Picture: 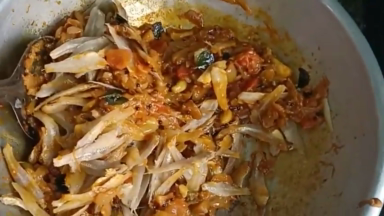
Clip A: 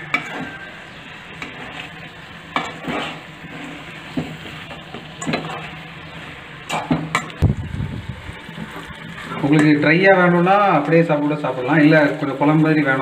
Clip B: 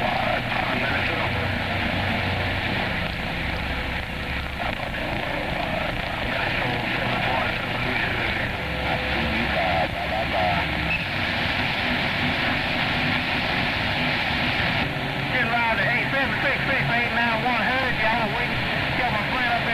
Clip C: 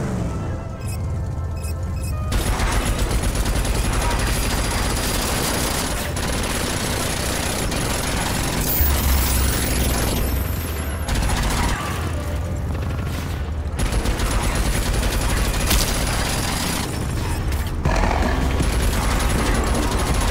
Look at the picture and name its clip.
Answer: A